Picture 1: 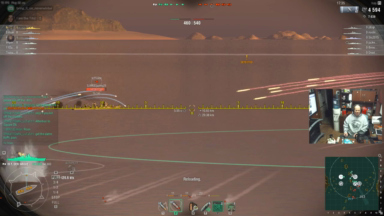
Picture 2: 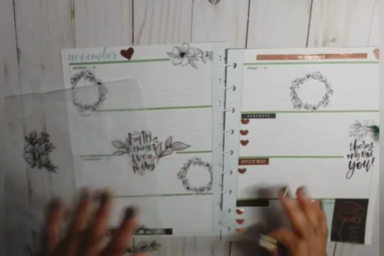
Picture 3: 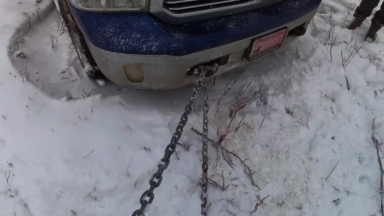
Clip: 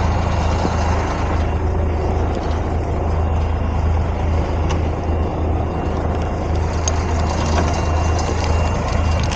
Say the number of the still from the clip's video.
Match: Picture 3